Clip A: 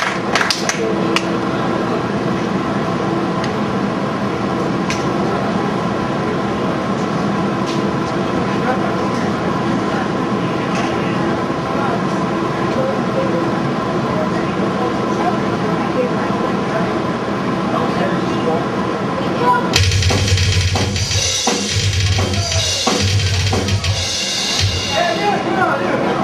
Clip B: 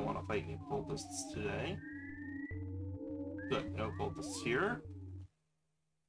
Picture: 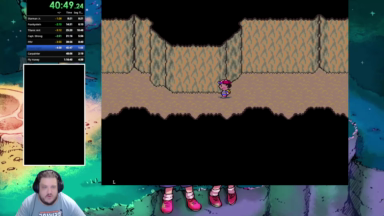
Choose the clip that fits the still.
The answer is B